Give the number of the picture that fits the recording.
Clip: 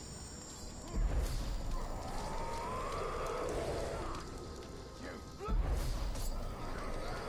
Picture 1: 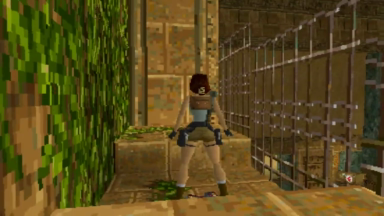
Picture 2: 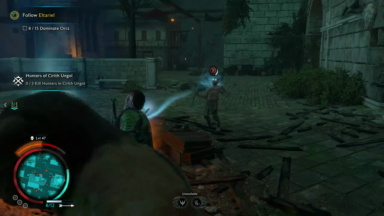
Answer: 2